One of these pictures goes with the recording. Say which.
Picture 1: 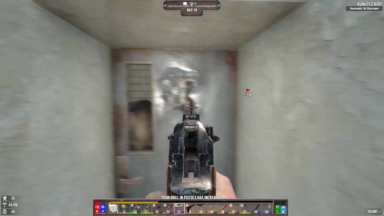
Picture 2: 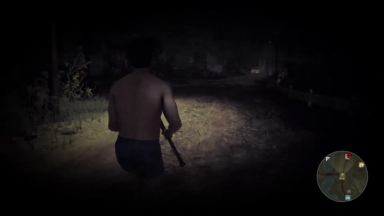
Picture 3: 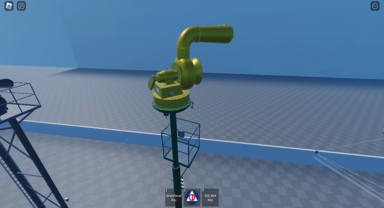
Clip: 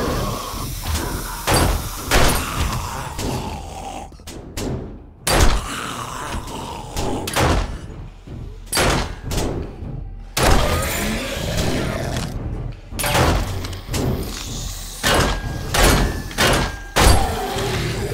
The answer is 1